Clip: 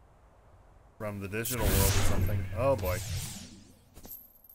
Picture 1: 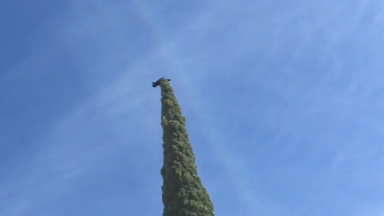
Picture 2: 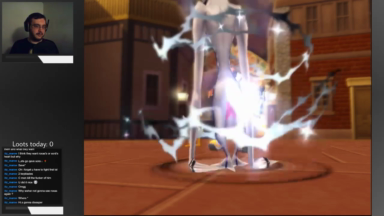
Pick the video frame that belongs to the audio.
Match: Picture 2